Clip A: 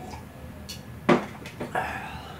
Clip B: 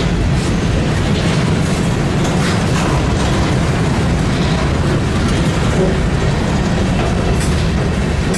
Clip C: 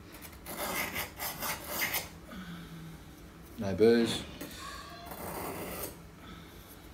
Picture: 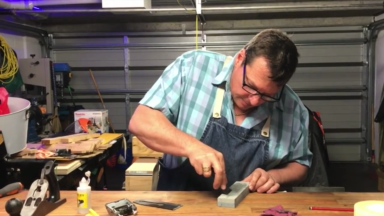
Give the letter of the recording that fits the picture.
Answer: C